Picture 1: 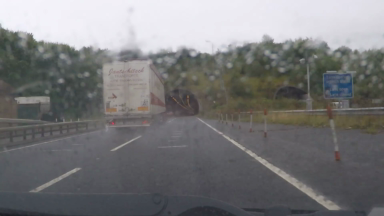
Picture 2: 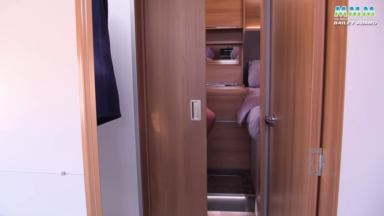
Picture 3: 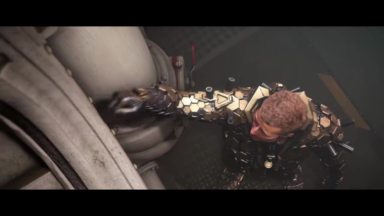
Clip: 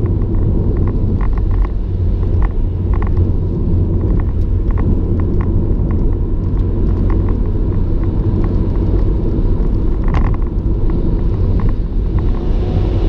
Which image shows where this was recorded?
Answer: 1